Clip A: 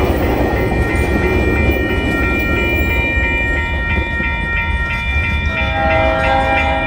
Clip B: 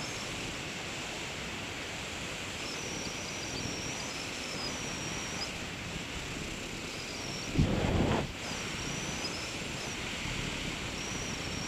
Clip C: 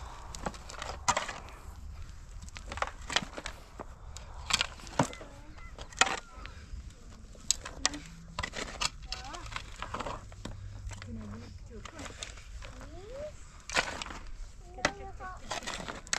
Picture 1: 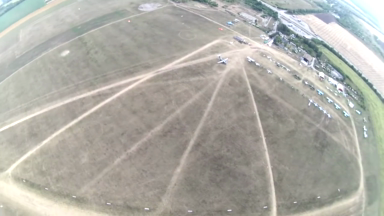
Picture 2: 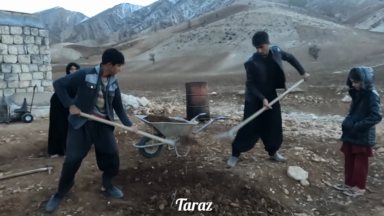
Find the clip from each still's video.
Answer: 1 B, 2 C